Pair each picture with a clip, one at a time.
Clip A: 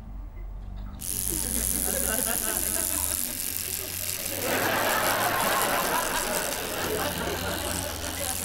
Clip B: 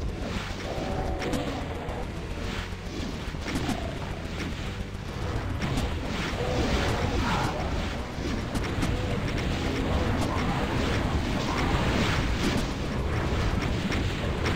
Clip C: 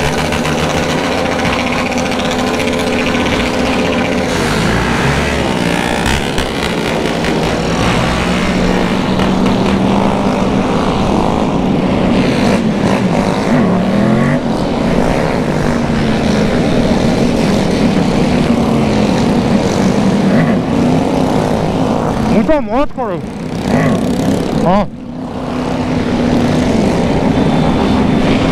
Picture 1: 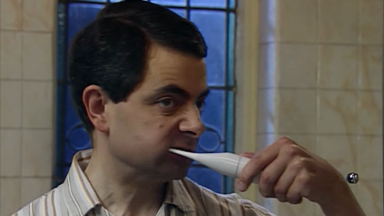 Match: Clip A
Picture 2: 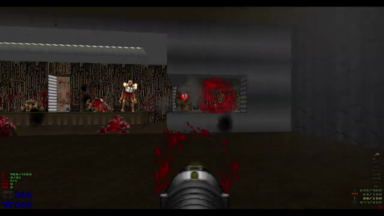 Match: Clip B